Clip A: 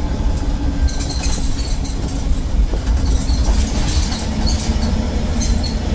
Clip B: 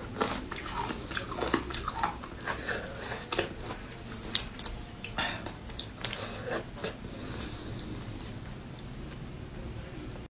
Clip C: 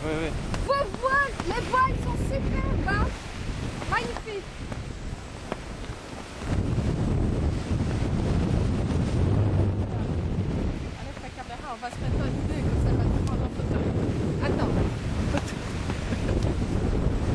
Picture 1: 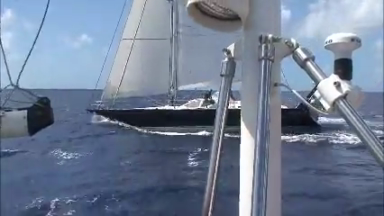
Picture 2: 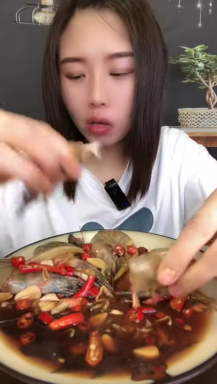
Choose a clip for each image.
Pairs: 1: C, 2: B